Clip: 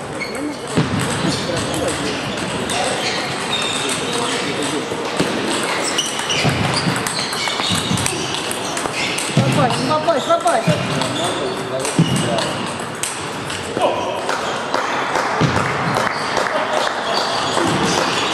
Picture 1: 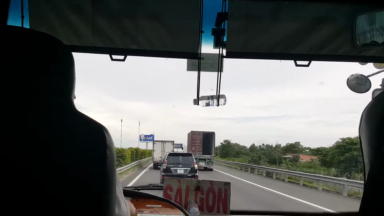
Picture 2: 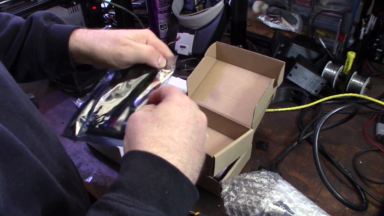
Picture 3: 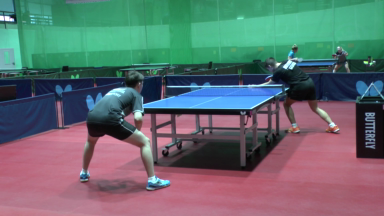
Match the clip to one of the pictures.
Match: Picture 3